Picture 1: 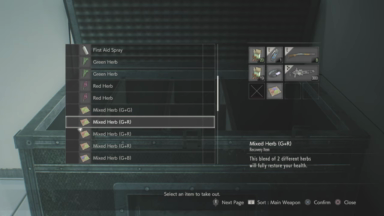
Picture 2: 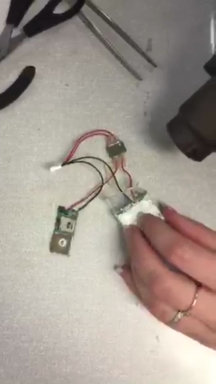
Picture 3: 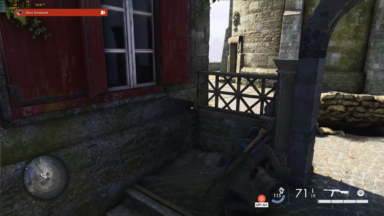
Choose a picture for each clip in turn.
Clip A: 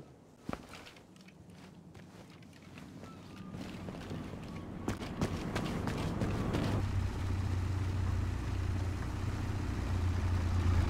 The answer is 3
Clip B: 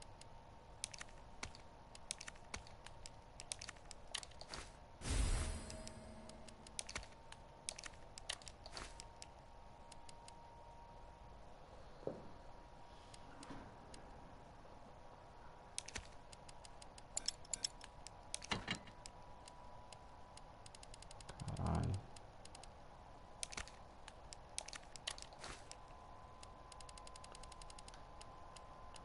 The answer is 1